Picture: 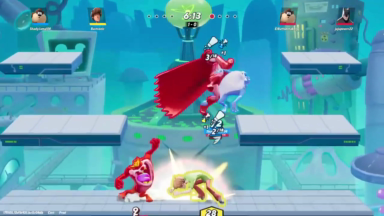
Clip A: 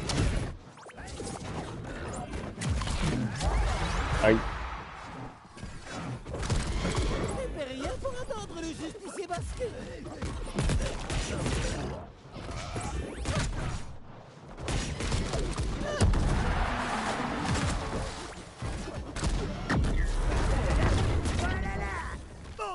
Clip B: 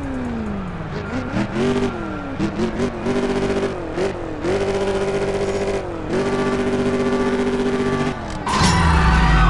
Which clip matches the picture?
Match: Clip A